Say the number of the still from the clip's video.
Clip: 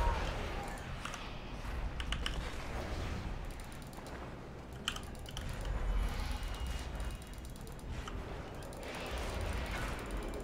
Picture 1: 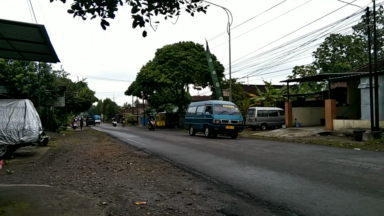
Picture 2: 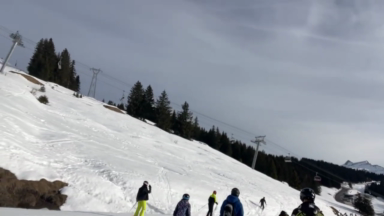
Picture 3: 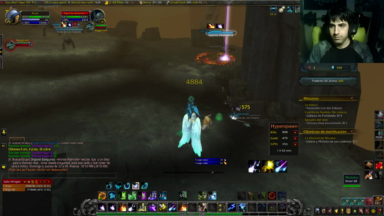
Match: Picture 3